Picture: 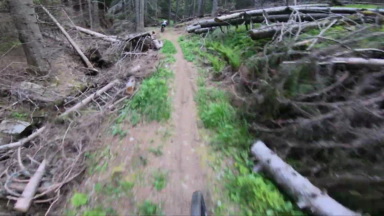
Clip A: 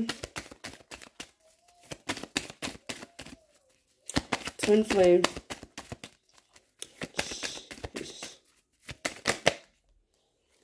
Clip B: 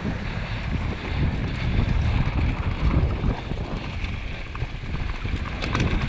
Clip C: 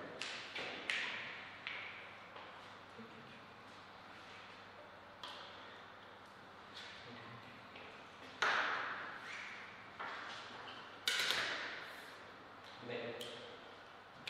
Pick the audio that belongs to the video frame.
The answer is B